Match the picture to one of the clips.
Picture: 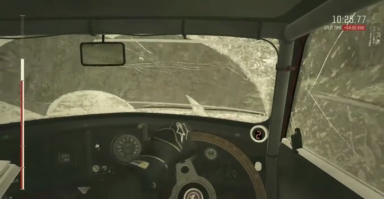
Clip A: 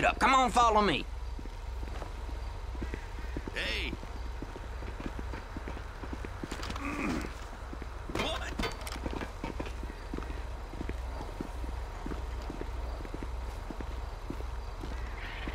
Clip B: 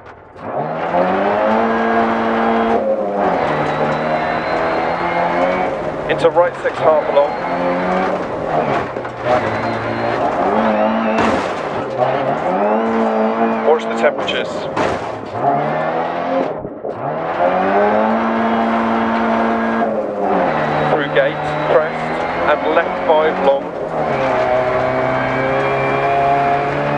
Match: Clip B